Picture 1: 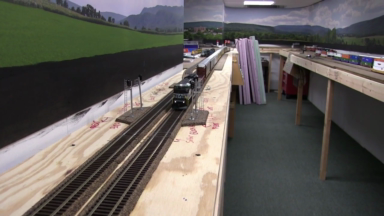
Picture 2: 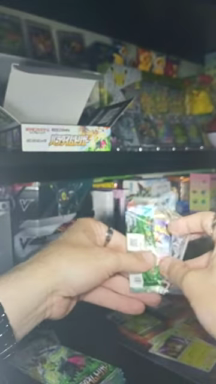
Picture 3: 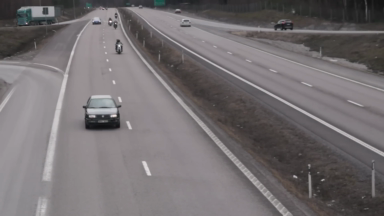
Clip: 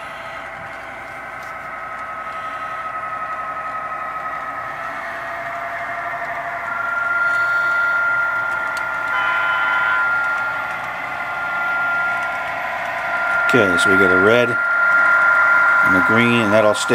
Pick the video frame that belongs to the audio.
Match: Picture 1